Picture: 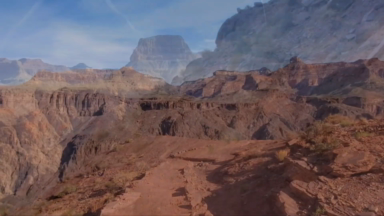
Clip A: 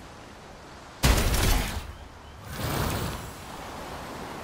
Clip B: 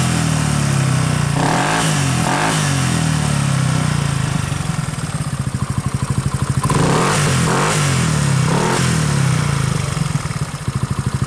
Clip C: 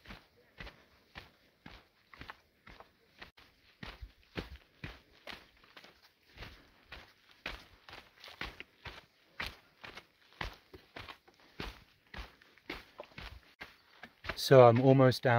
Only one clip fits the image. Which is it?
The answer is C